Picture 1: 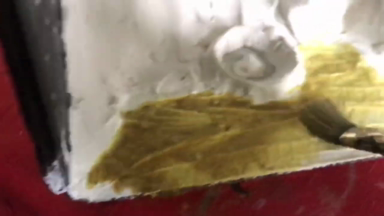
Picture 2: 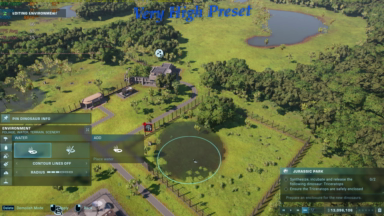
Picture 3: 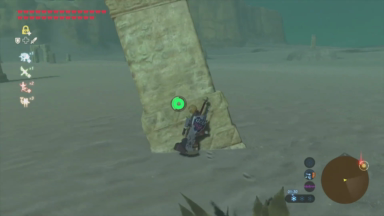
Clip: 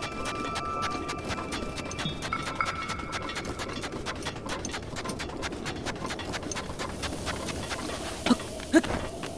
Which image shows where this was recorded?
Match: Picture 3